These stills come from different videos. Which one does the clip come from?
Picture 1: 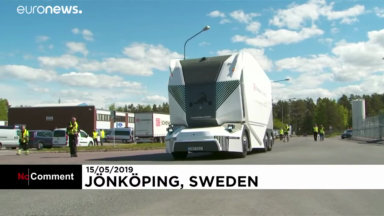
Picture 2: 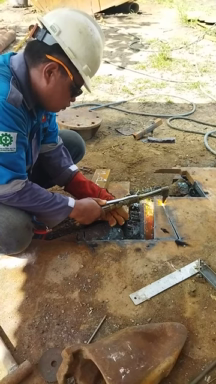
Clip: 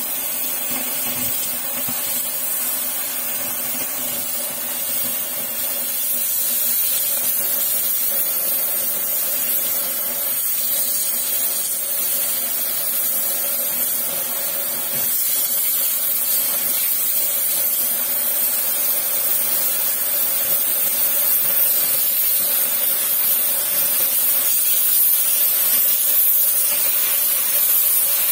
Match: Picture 2